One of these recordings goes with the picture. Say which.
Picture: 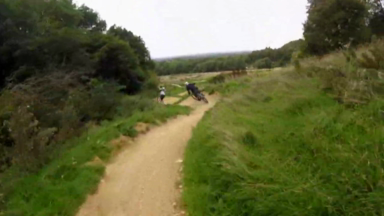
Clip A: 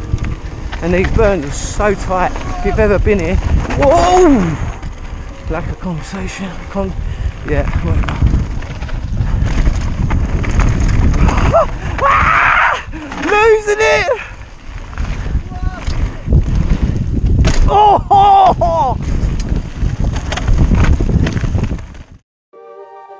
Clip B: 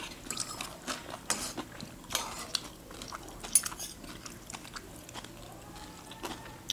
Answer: A